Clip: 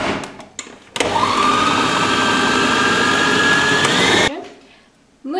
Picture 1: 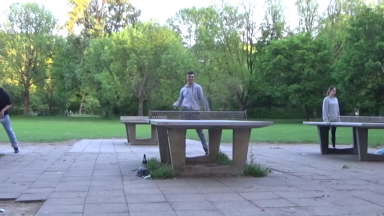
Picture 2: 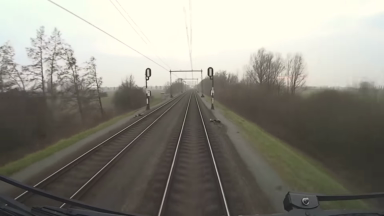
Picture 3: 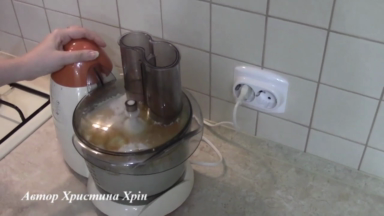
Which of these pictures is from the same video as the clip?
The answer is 3